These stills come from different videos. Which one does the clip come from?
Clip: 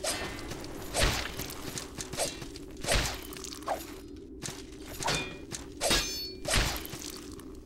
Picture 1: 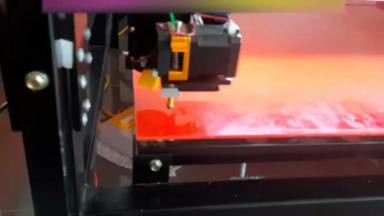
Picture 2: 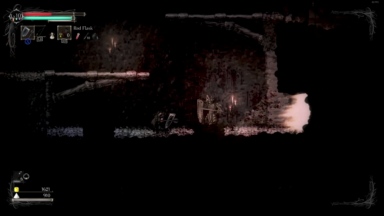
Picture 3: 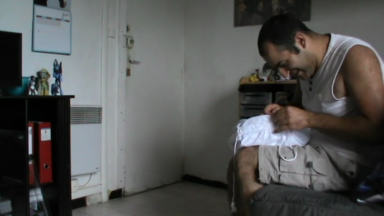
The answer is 2